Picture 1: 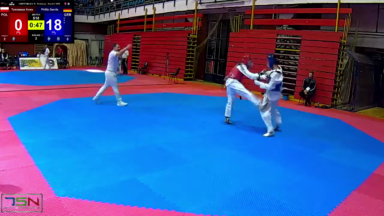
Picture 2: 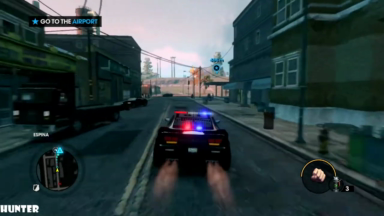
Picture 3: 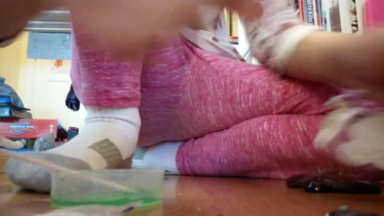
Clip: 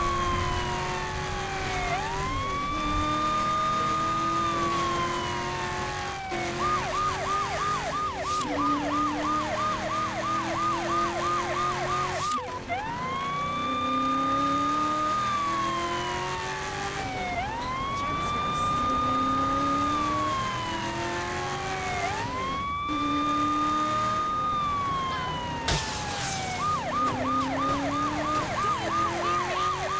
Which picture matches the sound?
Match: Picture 2